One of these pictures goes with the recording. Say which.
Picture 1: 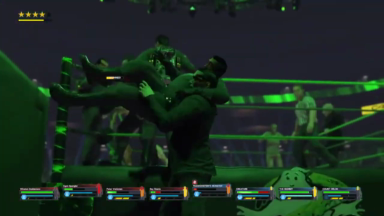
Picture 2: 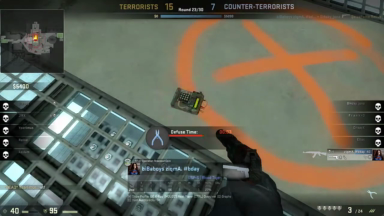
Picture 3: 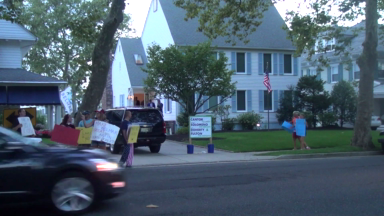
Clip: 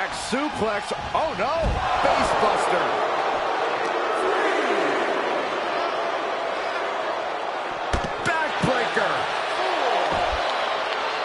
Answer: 1